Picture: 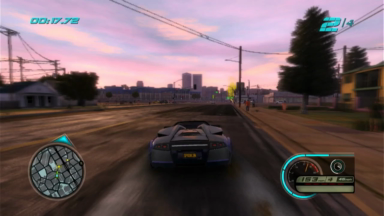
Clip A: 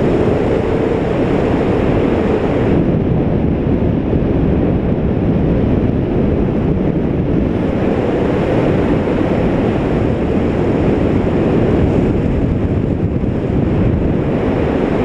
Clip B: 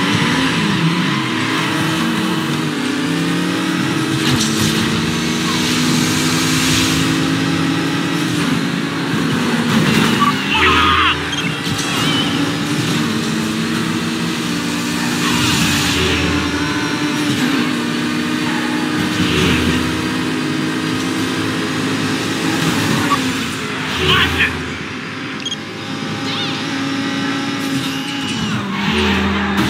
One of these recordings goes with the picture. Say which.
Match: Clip B